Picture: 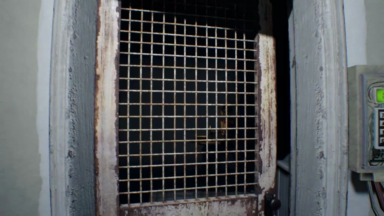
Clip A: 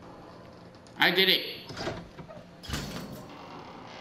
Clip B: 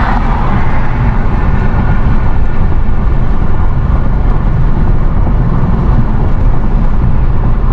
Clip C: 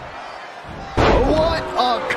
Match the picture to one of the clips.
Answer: A